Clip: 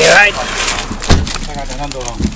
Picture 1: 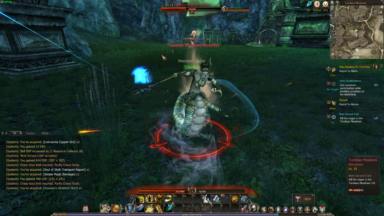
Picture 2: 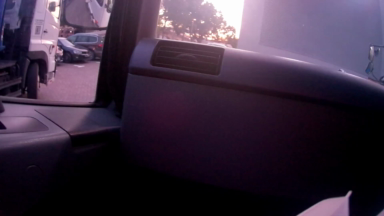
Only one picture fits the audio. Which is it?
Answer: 2